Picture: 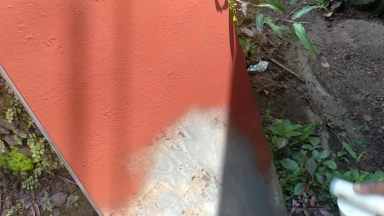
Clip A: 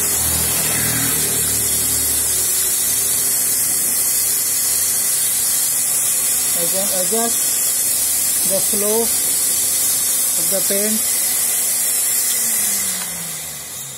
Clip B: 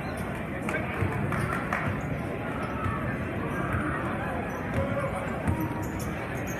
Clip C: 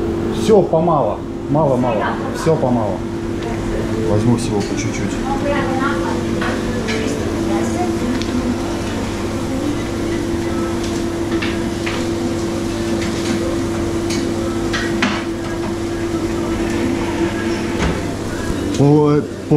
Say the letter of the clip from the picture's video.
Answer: A